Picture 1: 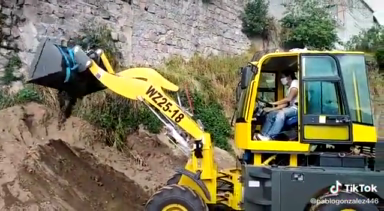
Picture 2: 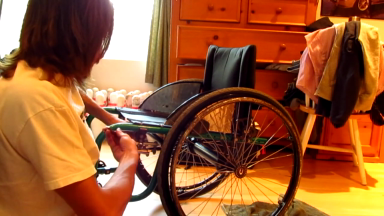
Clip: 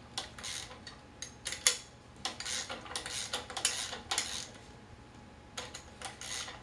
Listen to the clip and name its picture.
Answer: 2